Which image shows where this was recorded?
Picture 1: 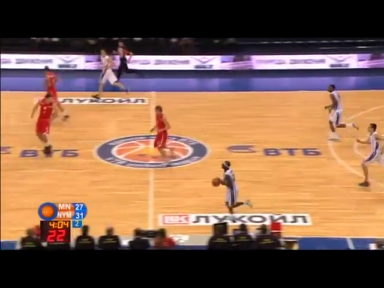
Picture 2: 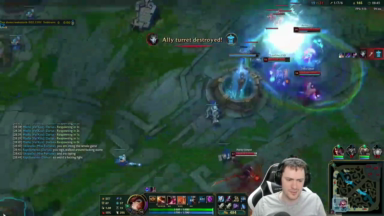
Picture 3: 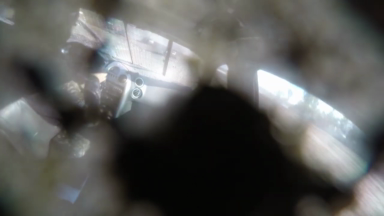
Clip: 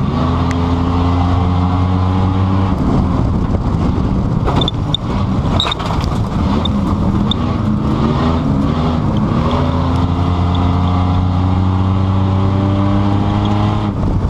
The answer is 3